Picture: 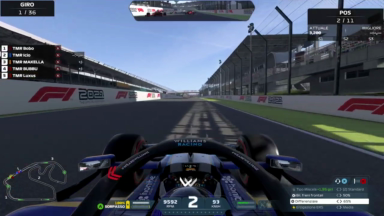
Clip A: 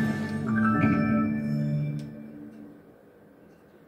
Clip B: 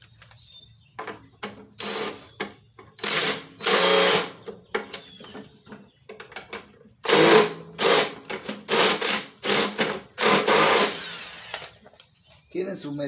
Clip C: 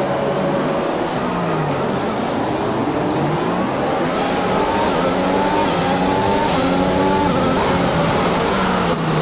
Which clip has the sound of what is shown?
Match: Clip C